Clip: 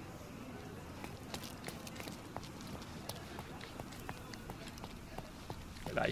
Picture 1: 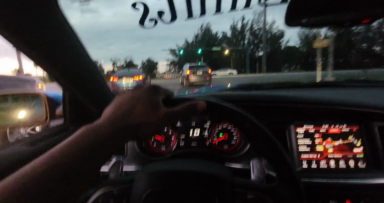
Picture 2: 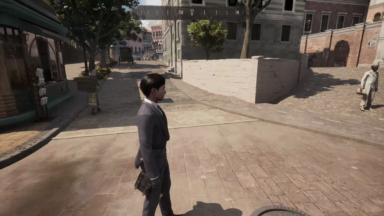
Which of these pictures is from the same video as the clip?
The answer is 2